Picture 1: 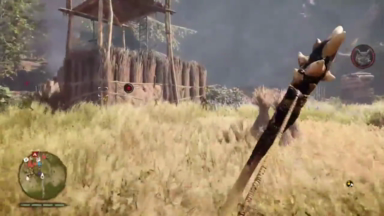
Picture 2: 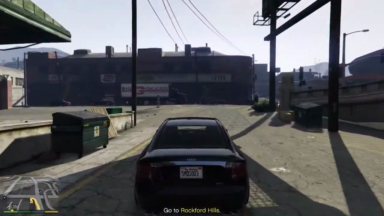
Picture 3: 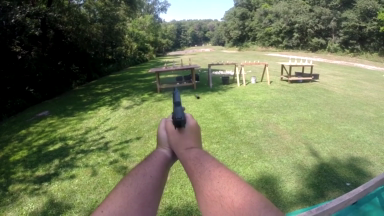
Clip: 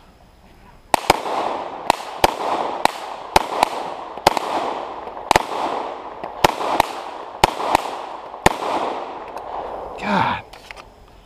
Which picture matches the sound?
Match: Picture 3